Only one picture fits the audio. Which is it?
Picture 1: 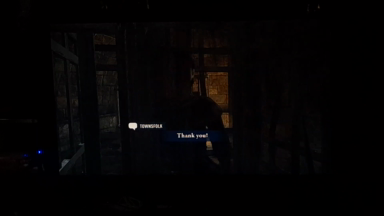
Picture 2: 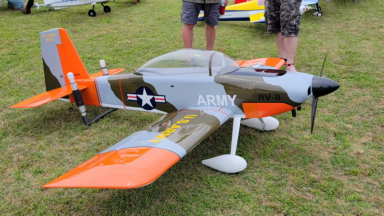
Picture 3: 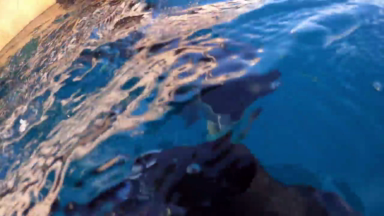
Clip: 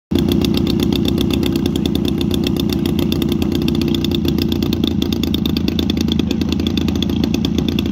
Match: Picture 2